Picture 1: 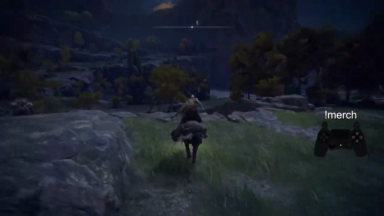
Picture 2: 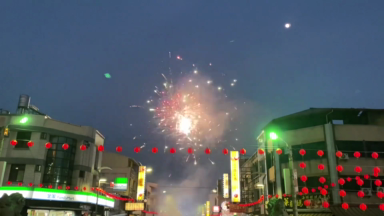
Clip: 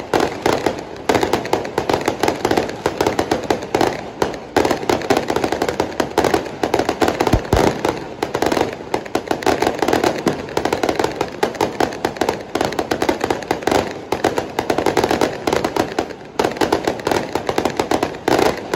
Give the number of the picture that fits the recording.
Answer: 2